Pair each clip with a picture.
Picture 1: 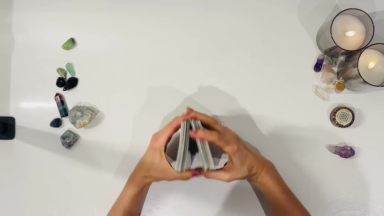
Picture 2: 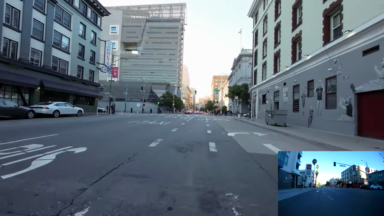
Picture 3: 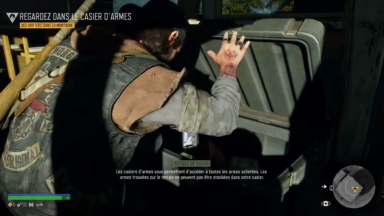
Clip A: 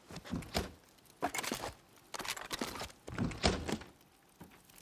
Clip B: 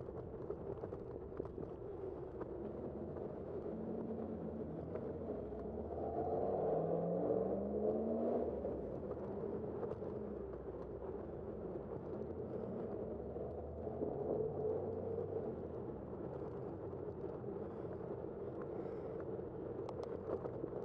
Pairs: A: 3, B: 2